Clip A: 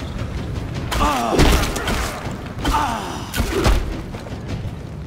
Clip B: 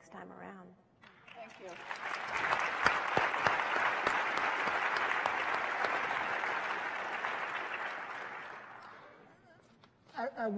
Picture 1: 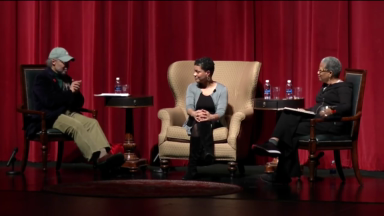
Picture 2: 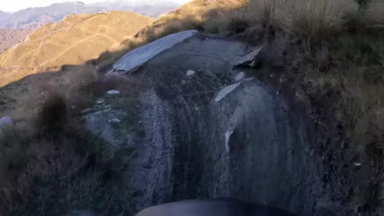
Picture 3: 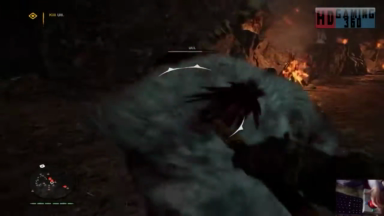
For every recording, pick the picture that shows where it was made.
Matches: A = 3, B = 1